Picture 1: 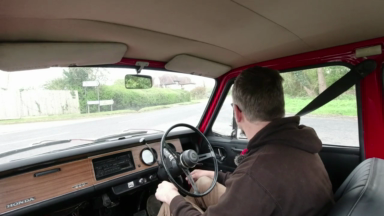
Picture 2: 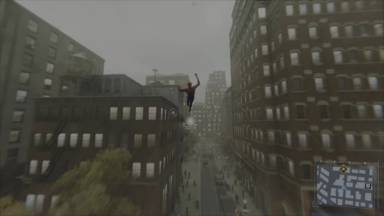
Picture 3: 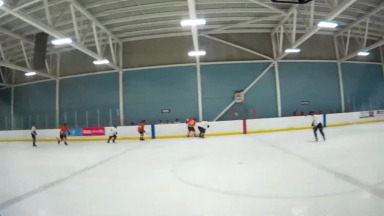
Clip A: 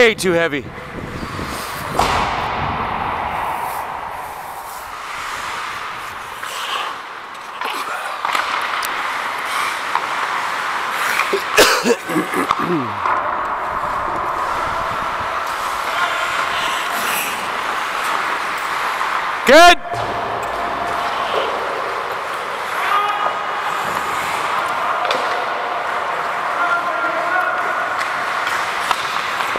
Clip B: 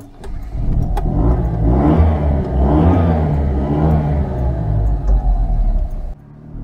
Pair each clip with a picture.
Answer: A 3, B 1